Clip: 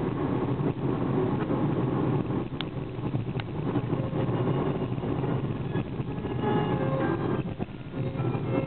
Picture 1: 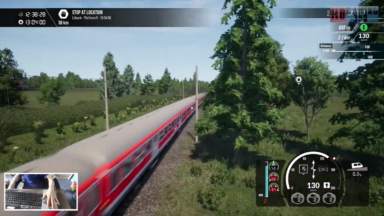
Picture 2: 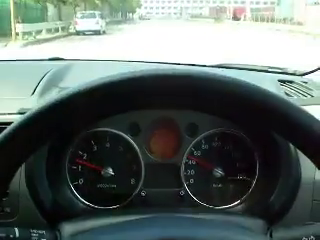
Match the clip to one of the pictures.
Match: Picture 2